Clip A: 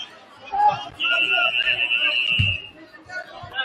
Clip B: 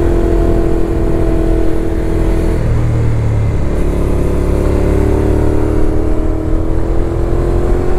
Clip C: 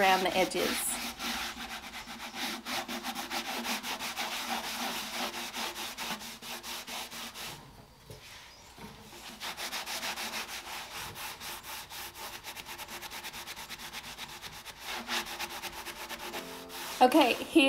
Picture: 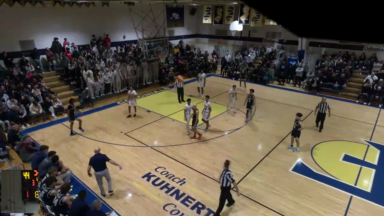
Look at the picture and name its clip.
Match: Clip A